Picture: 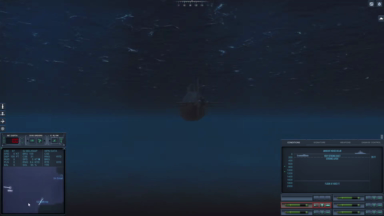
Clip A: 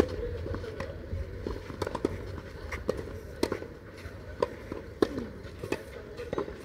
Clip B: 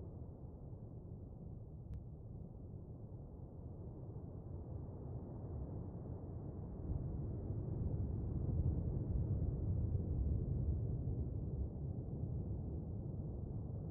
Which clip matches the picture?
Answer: B